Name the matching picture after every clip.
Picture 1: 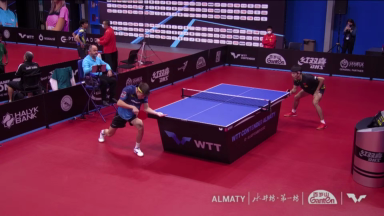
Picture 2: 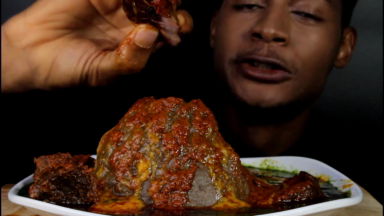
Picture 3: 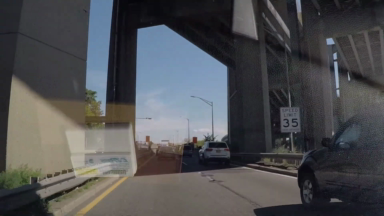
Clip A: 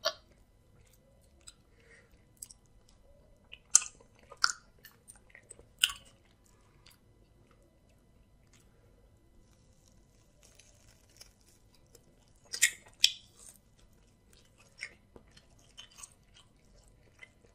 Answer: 2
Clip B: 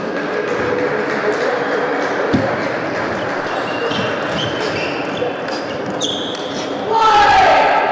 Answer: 1